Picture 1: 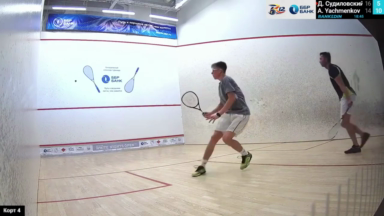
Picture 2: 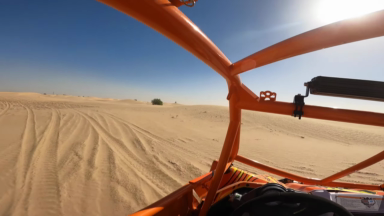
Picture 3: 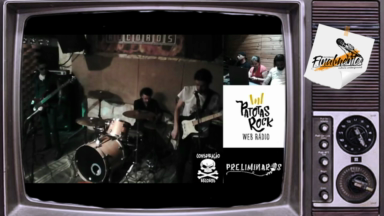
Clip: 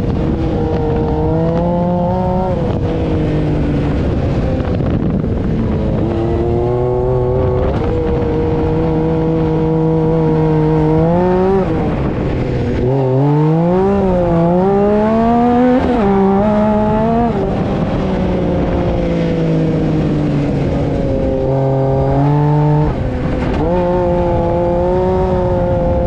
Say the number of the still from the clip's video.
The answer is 2